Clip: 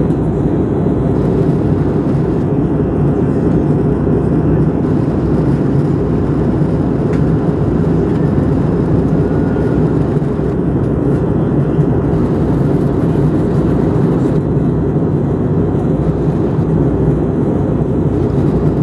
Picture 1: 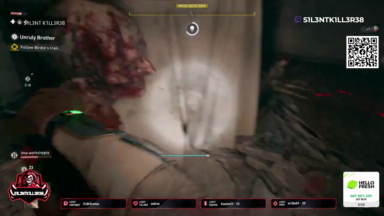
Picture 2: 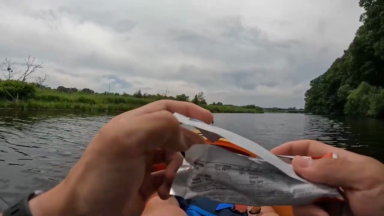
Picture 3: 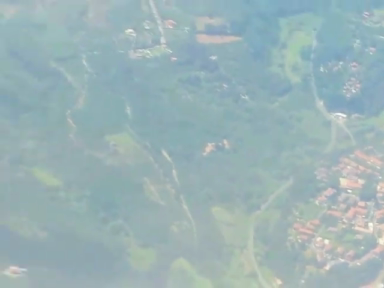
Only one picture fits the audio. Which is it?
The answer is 3